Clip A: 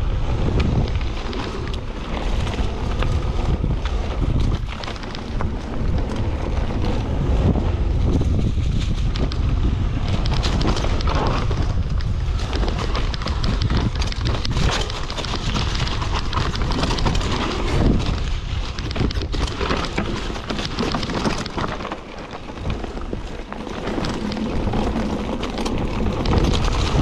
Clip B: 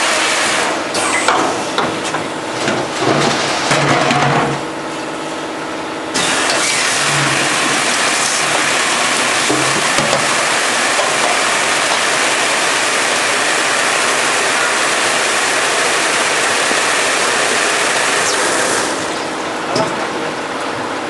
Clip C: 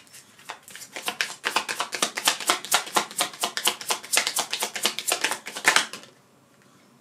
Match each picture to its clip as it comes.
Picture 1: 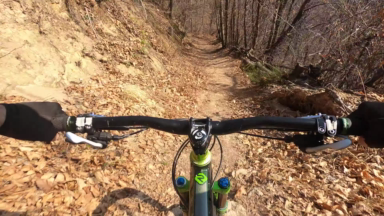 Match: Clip A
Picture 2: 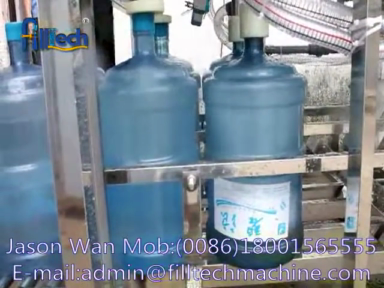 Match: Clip B